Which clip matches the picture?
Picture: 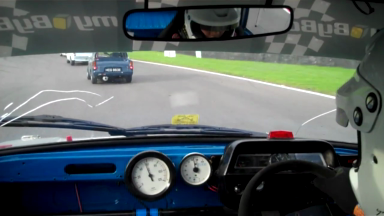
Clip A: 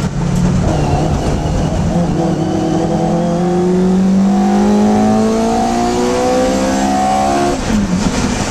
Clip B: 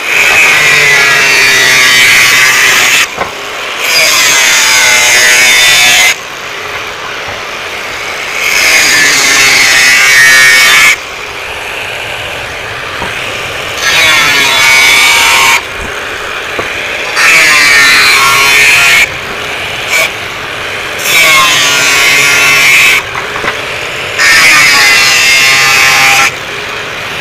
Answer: A